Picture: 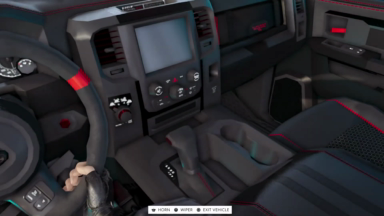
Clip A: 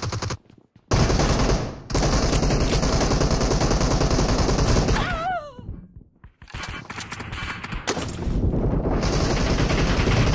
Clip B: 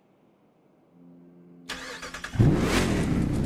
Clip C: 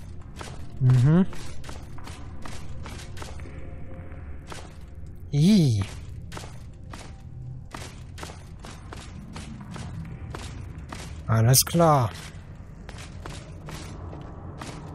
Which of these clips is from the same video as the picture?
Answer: B